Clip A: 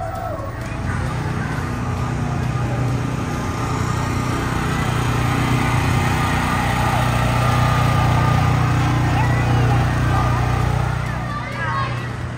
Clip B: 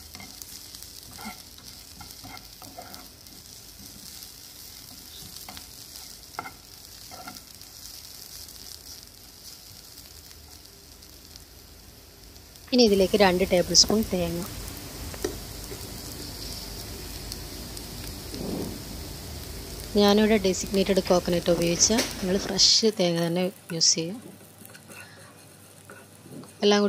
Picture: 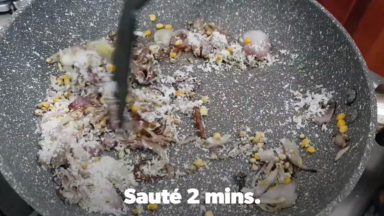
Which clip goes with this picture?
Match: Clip B